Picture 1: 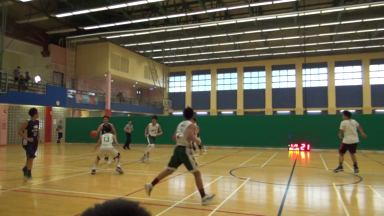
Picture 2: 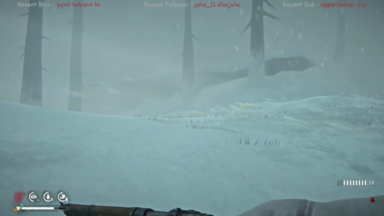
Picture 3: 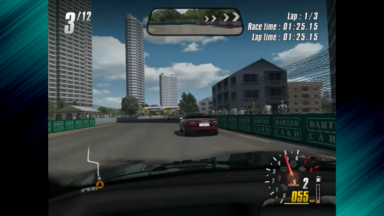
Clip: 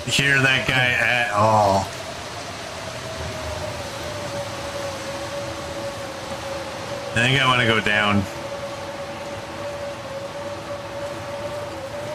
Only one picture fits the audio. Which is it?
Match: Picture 2